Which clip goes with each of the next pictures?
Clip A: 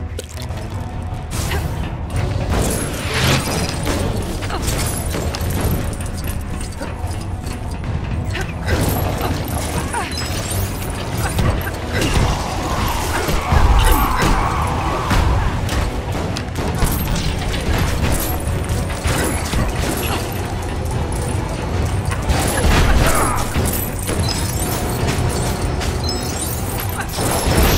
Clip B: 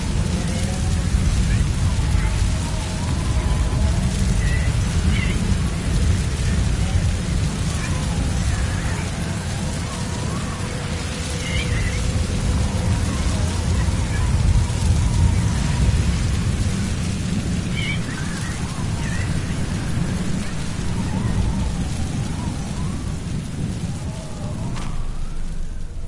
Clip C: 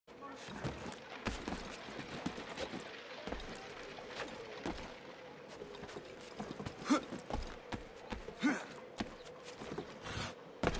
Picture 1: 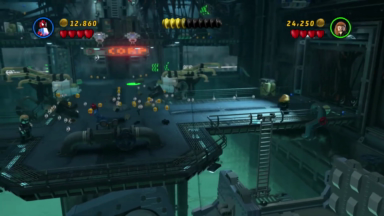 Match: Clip A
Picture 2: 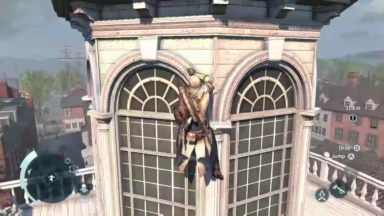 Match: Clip C